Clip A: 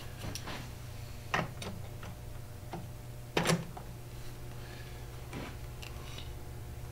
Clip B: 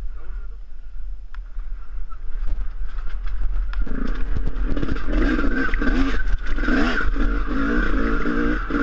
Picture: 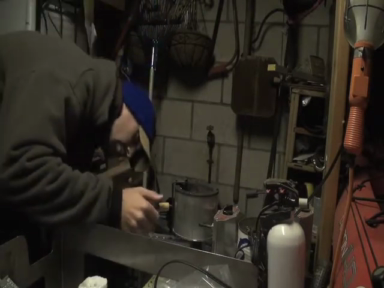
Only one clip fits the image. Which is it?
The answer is A